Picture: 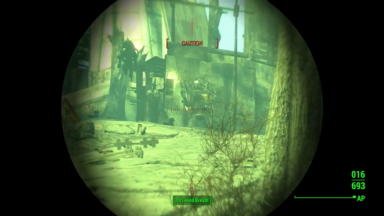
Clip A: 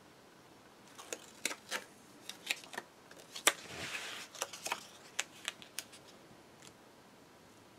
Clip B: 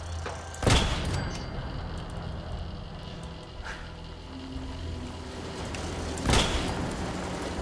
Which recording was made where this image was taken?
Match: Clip B